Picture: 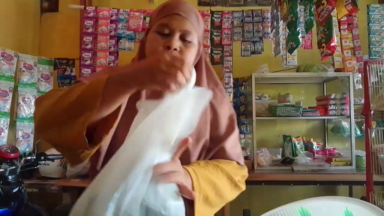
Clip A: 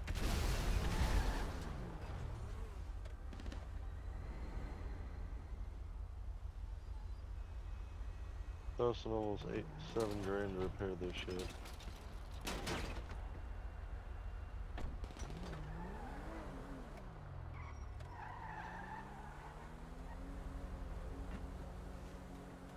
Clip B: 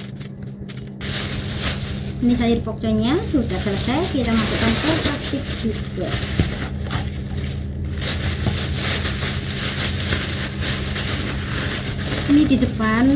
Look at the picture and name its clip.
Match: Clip B